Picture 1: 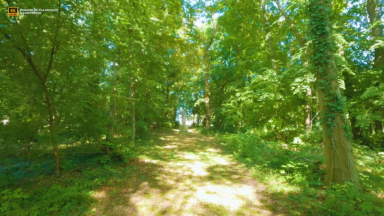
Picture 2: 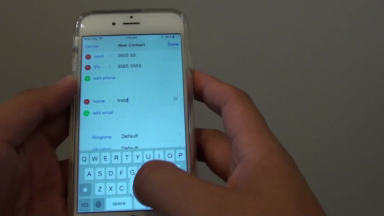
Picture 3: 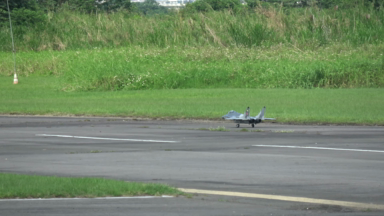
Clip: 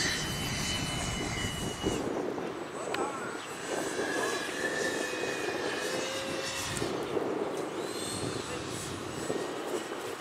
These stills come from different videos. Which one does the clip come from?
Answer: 3